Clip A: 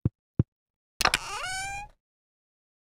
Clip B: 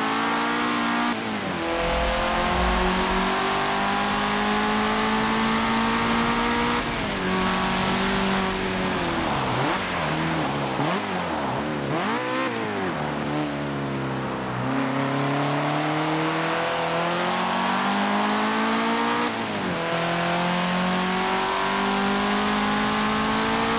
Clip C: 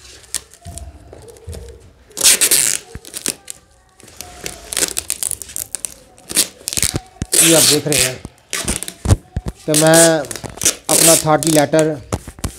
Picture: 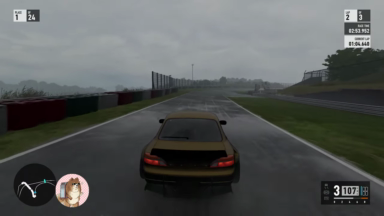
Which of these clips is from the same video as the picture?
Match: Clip B